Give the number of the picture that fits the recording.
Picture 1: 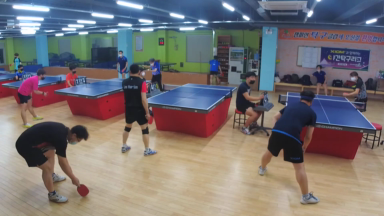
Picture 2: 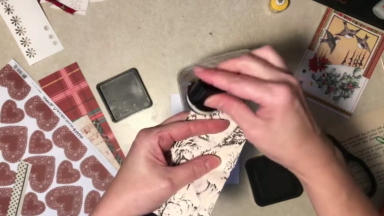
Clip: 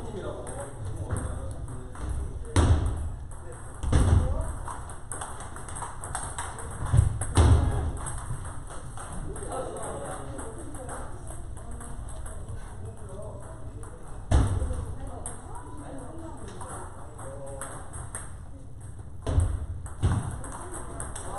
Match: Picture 1